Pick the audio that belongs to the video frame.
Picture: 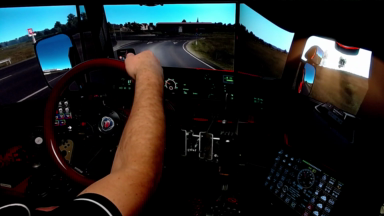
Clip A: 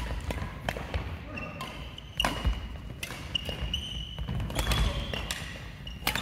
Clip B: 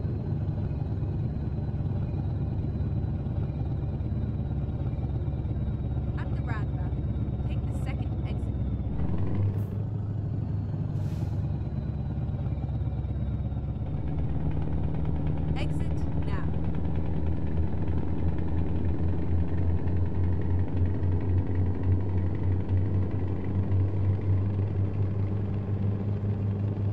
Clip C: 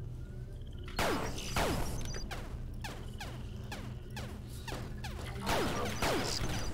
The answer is B